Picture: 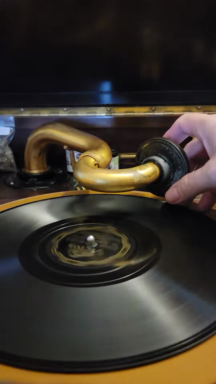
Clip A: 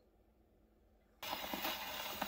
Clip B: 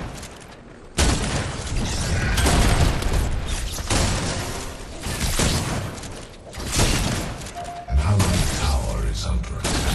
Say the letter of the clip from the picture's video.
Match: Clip A